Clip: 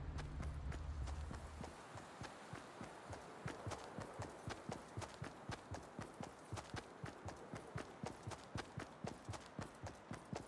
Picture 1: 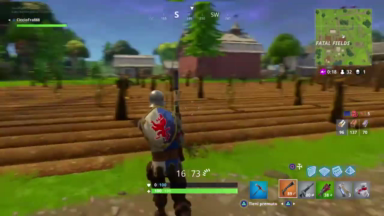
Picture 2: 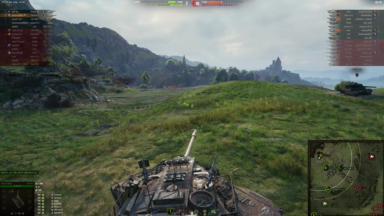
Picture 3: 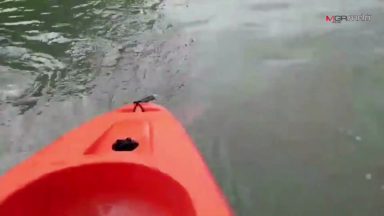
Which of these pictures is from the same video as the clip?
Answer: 1